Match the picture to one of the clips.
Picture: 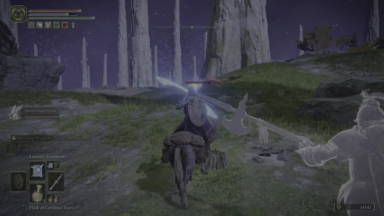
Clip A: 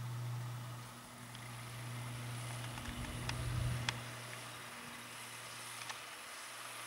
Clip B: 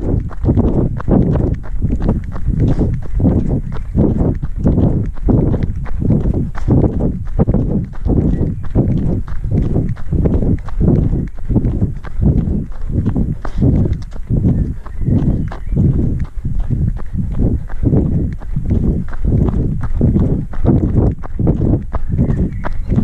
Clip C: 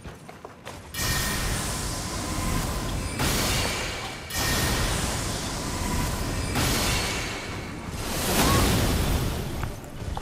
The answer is C